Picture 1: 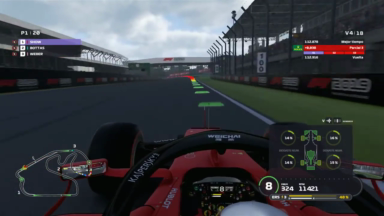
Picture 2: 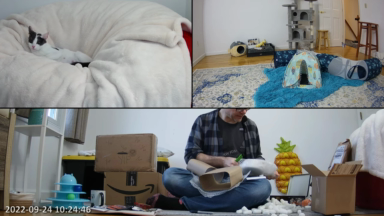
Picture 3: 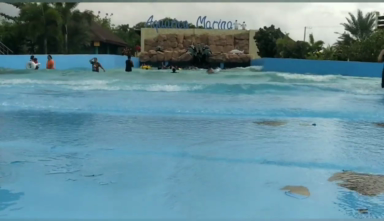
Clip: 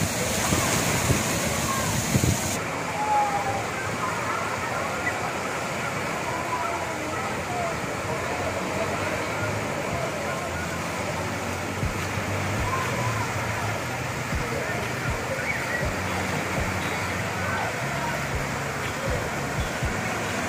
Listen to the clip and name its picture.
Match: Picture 3